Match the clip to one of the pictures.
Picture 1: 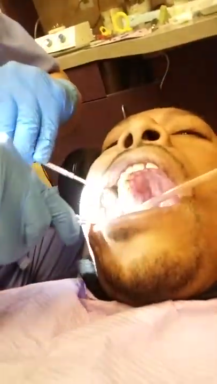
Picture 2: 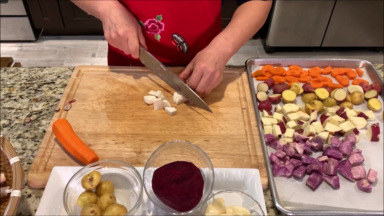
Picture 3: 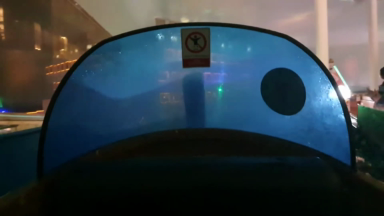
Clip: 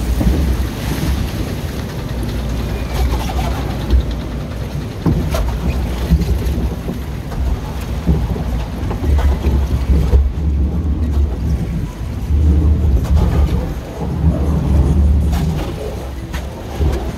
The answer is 3